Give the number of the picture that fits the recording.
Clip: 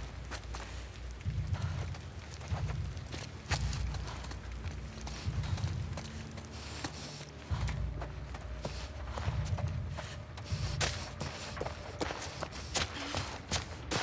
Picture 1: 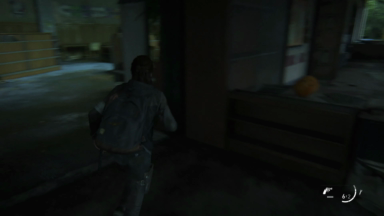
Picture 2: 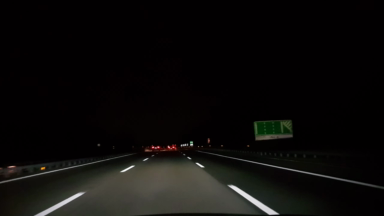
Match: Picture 1